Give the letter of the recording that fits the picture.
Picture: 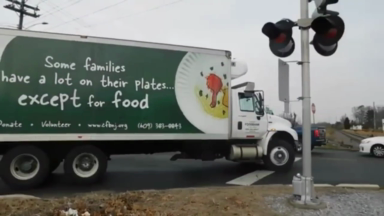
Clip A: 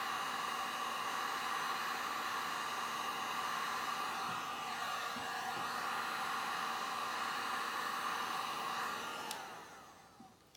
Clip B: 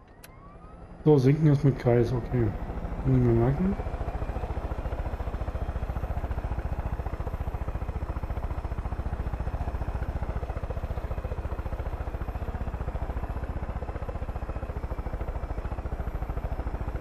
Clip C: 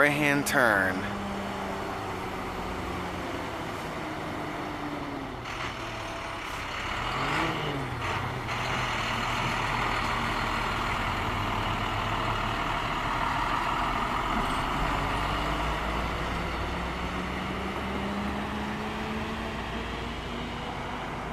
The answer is C